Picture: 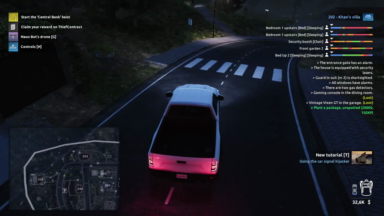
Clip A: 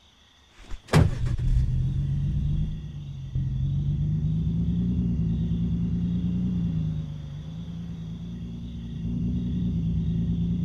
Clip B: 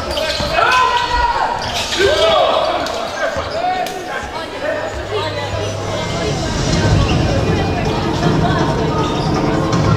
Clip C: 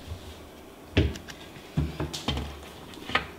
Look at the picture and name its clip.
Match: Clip A